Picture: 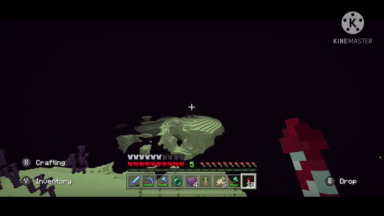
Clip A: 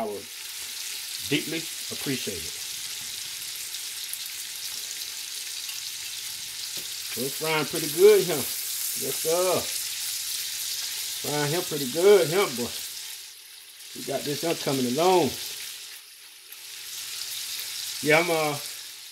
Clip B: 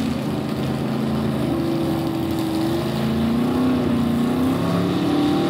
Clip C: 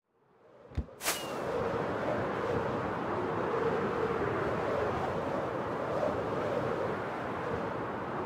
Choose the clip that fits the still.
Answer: C